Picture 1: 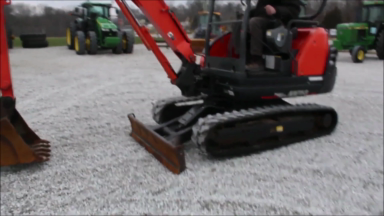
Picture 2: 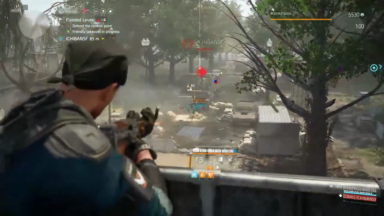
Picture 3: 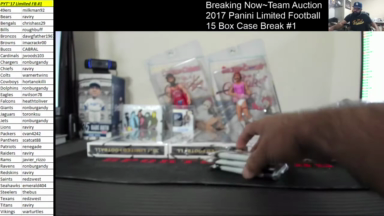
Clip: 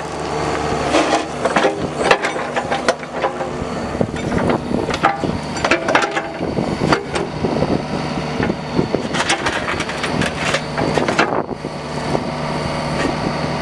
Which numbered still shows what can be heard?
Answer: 1